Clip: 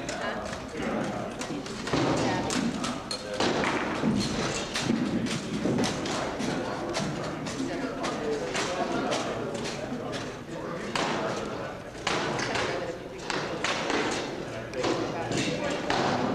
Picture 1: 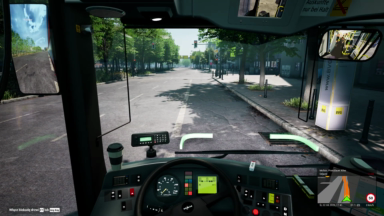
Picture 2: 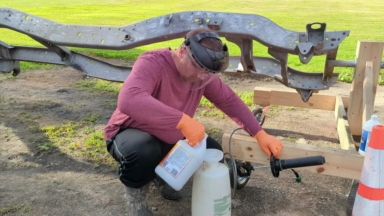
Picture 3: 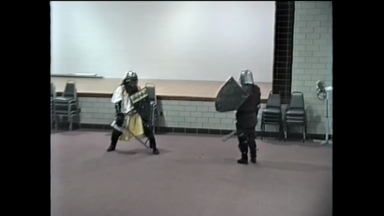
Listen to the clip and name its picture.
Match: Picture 3